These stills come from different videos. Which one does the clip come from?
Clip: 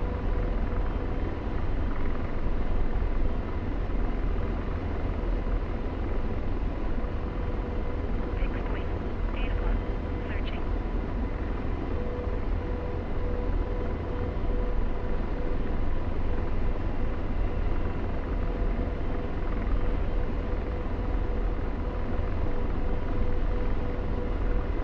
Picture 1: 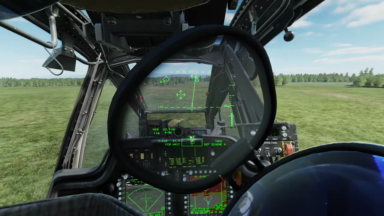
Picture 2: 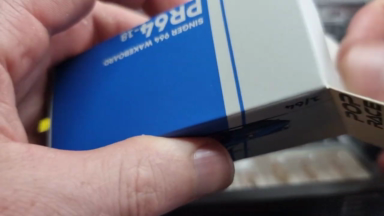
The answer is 1